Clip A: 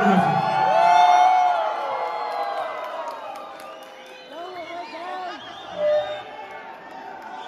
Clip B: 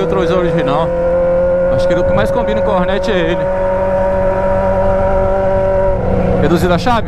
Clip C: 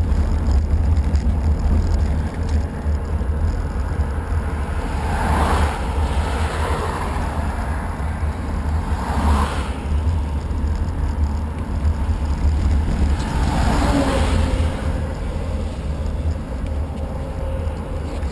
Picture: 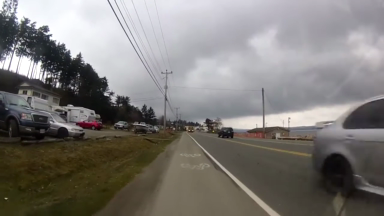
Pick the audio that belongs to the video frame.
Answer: C